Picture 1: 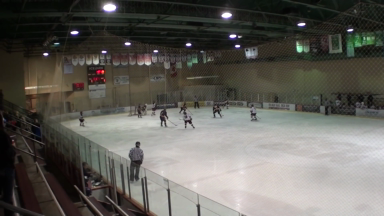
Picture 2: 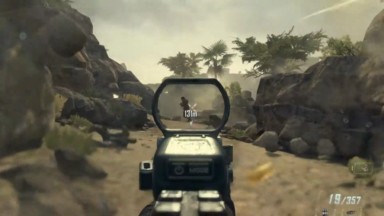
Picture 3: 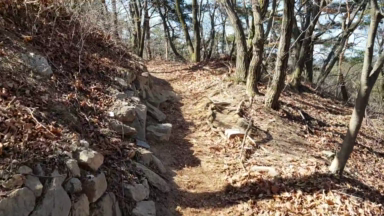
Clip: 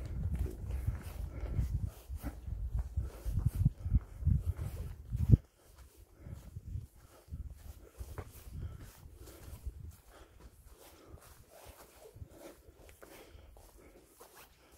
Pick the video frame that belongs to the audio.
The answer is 3